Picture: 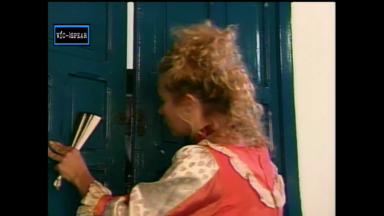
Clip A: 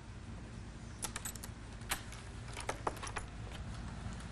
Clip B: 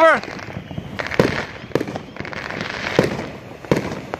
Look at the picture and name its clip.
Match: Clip A